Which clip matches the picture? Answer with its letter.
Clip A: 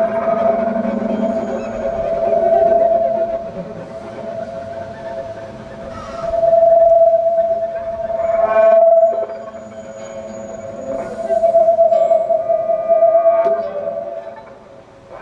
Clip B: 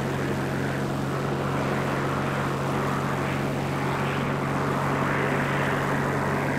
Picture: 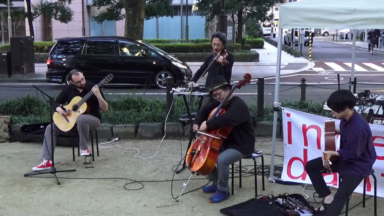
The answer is A